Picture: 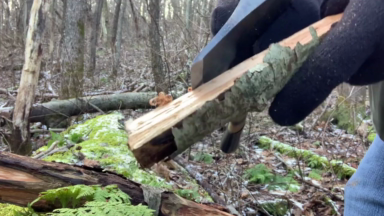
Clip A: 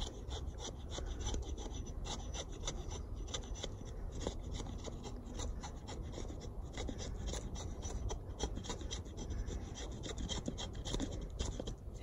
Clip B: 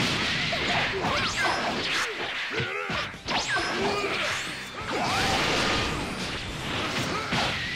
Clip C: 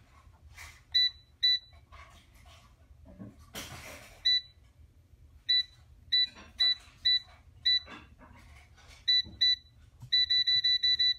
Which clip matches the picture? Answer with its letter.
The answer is A